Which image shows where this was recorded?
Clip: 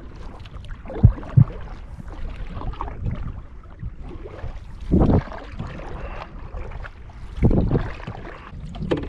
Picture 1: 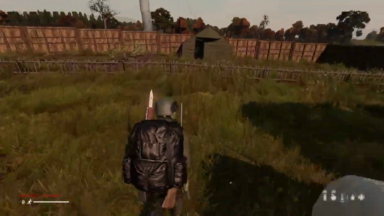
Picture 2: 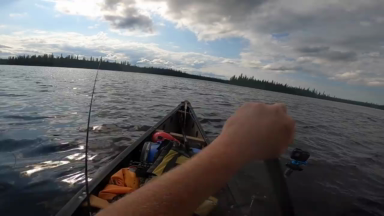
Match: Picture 2